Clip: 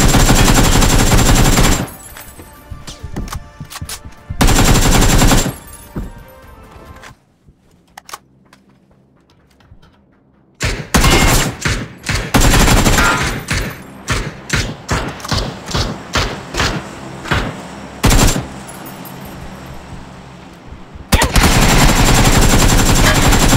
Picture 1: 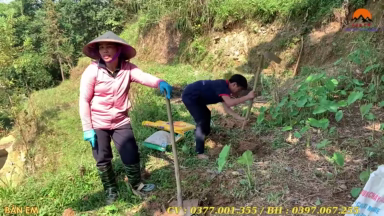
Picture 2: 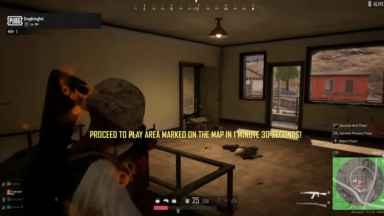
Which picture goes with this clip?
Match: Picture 2